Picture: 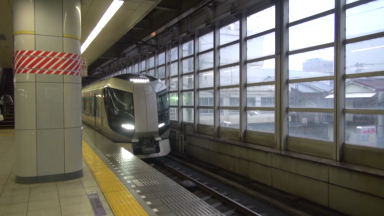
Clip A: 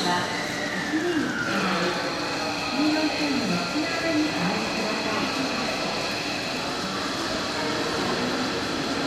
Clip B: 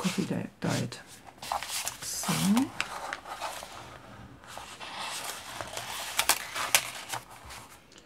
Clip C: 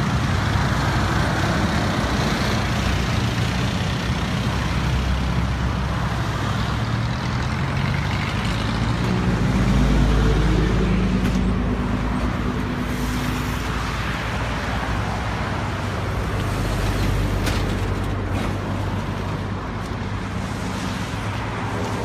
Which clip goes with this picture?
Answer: A